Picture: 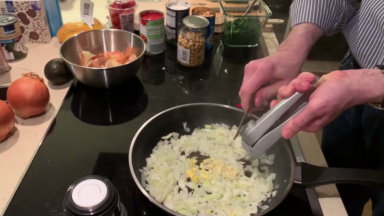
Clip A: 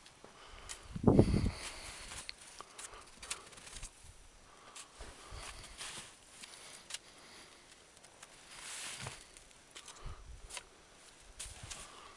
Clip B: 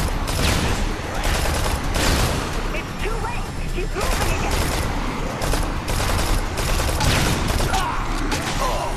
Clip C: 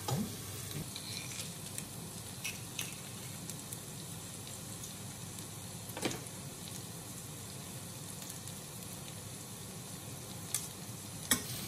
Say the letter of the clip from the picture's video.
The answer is C